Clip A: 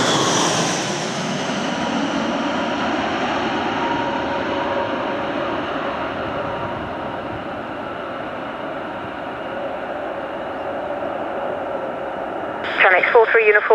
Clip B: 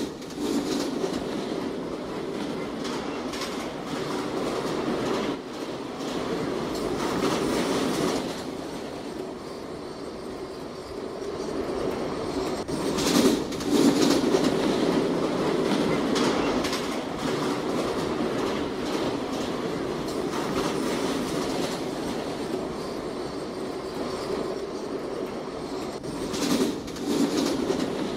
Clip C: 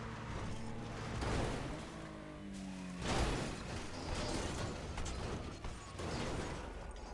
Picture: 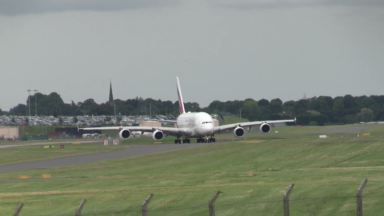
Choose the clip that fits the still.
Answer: A